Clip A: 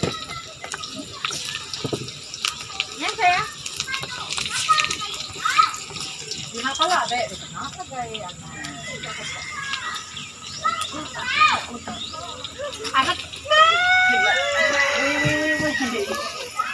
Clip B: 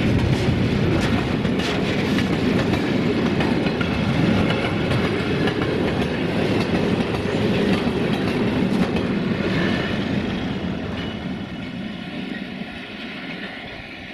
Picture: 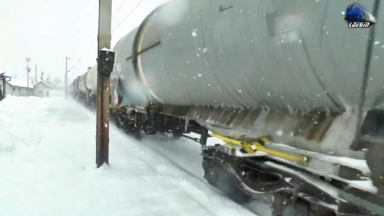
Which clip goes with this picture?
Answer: B